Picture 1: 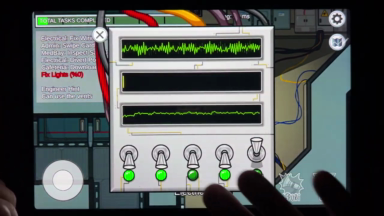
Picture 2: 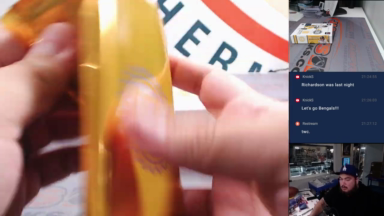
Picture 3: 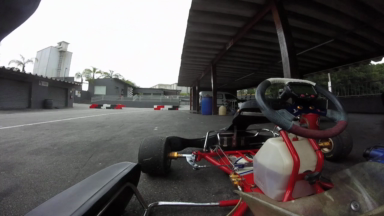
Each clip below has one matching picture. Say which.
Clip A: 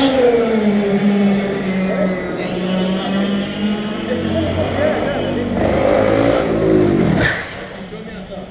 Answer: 3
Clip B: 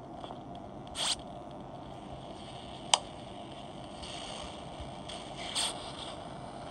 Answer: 1